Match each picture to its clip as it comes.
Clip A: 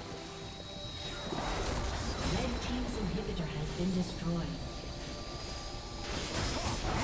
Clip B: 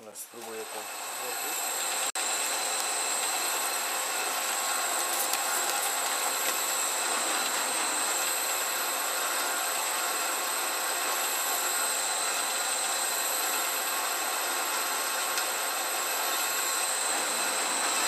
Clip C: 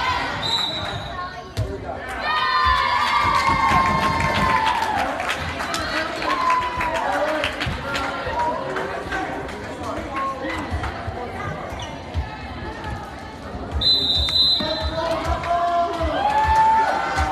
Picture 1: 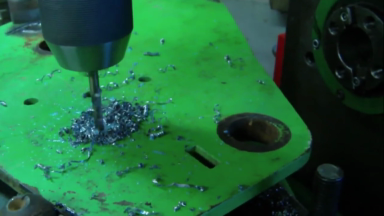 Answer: B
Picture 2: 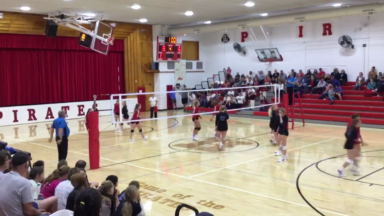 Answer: C